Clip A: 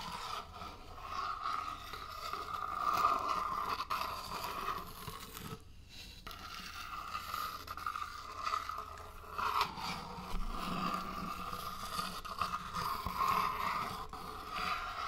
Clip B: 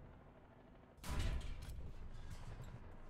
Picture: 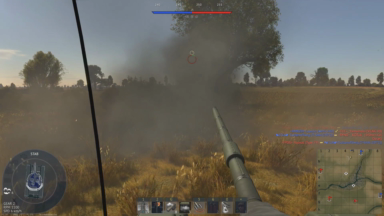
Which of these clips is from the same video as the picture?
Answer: B